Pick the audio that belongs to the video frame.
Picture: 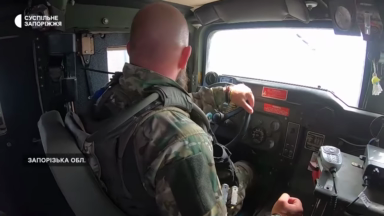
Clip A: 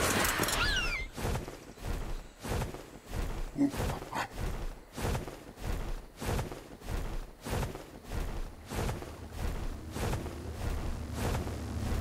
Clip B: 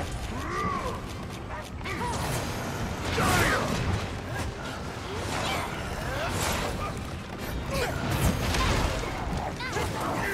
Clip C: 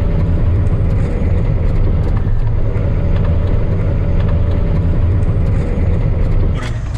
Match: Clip C